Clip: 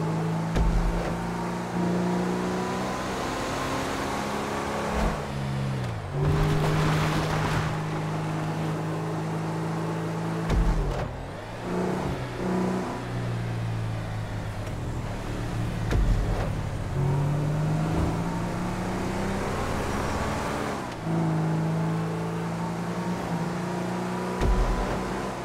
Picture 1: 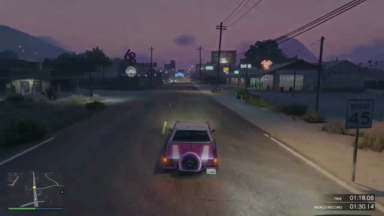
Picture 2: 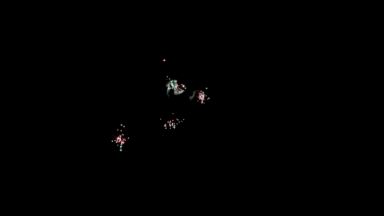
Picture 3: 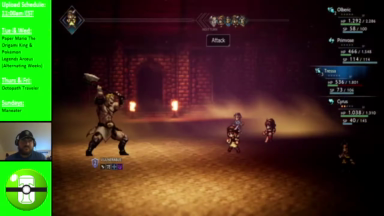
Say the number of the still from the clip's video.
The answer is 1